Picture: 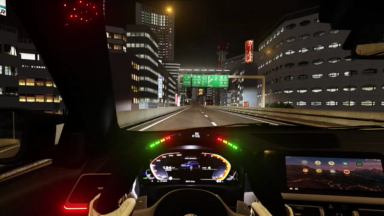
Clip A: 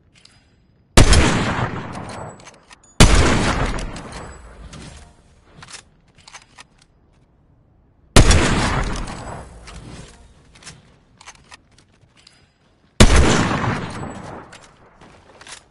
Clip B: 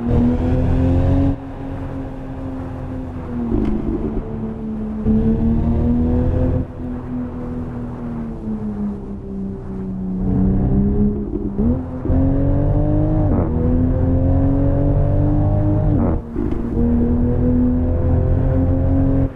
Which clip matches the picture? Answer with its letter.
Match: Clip B